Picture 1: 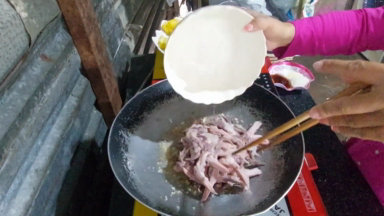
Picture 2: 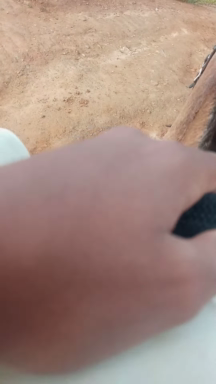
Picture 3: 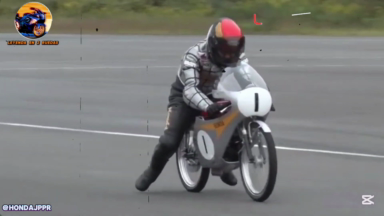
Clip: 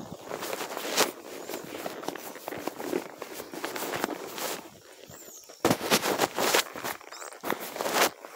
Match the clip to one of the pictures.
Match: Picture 2